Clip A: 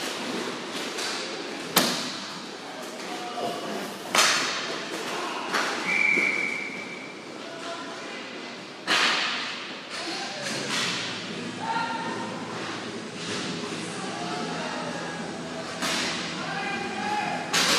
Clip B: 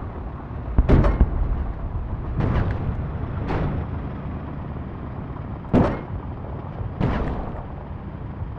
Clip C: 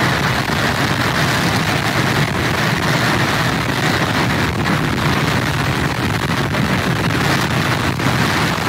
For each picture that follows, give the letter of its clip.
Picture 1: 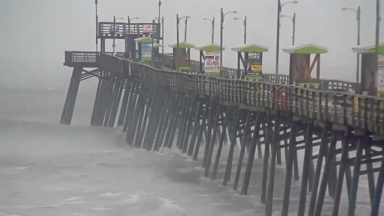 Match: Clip C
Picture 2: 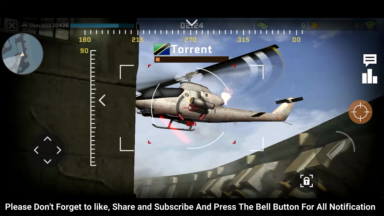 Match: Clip B